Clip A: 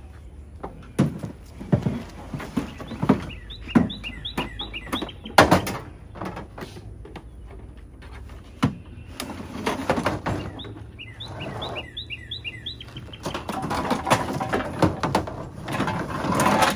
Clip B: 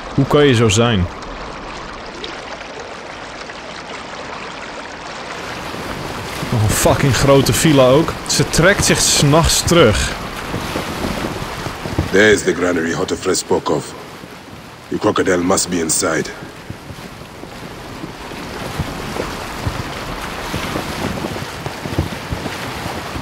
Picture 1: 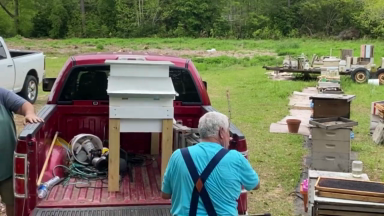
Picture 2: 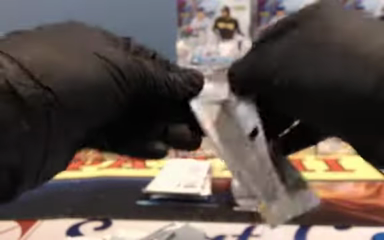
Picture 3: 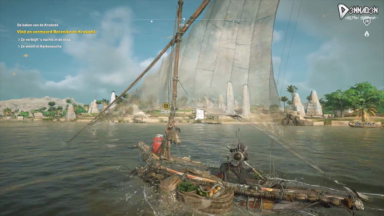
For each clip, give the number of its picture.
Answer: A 1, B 3